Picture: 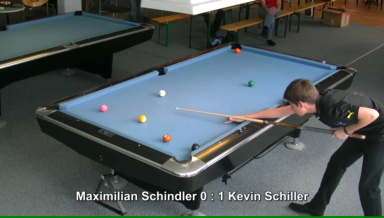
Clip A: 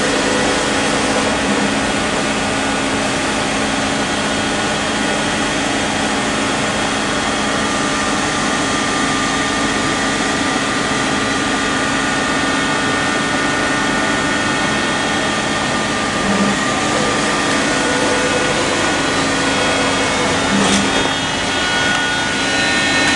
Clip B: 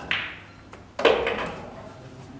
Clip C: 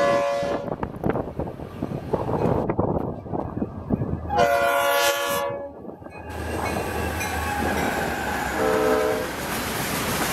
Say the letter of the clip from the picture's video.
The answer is B